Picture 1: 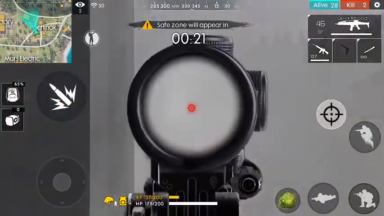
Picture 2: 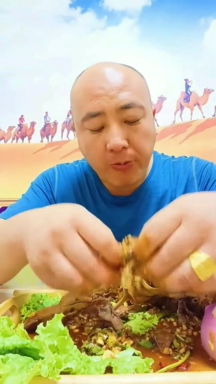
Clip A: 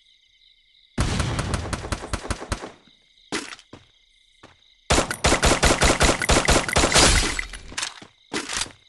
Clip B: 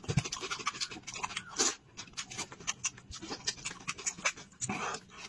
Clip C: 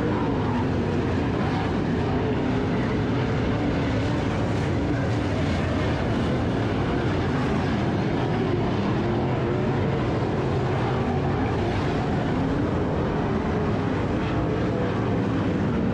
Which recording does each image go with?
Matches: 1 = A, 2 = B